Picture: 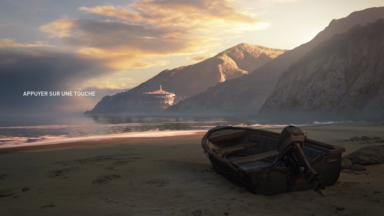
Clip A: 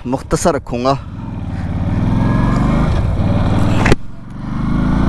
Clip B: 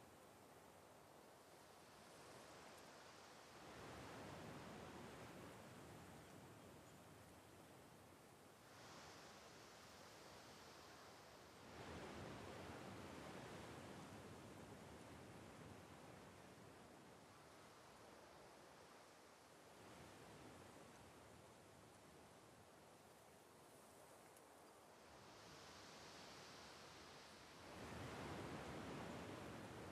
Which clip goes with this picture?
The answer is B